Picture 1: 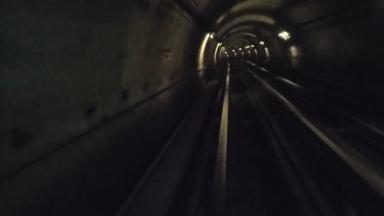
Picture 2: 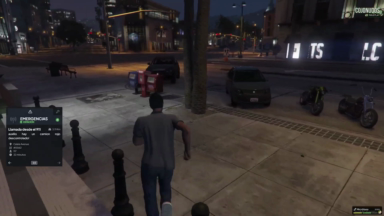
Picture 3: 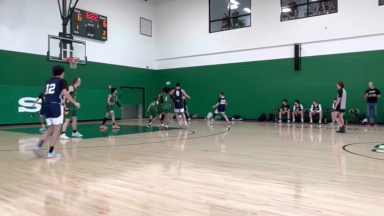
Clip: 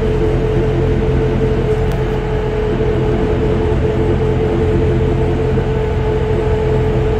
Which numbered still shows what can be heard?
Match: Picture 1